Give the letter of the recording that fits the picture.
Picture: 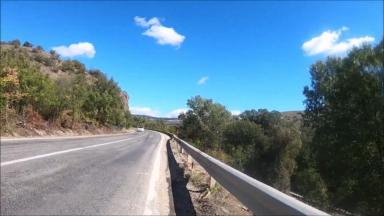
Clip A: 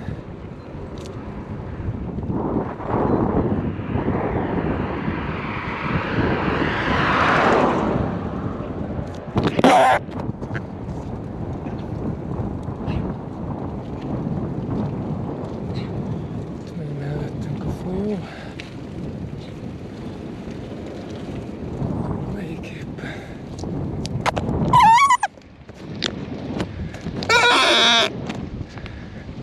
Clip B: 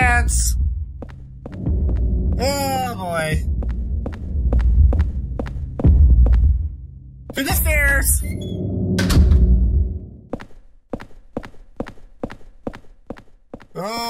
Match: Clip A